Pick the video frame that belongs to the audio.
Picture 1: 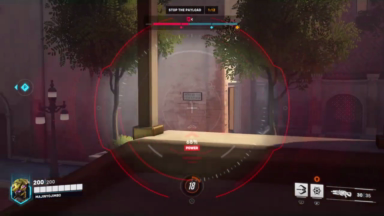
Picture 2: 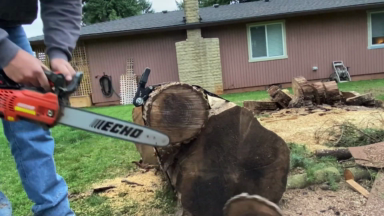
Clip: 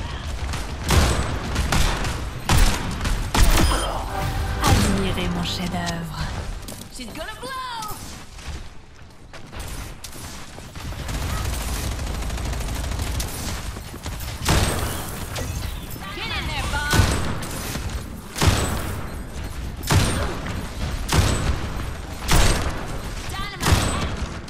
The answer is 1